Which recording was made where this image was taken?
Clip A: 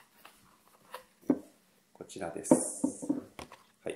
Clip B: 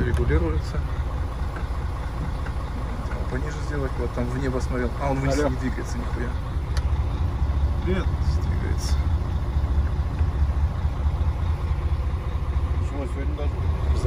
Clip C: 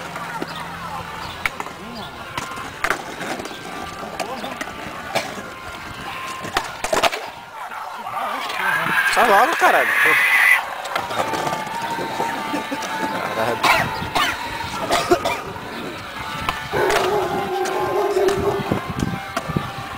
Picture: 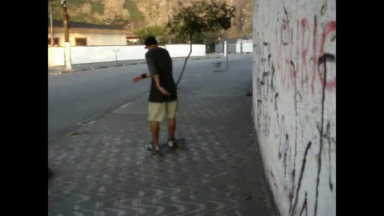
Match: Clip C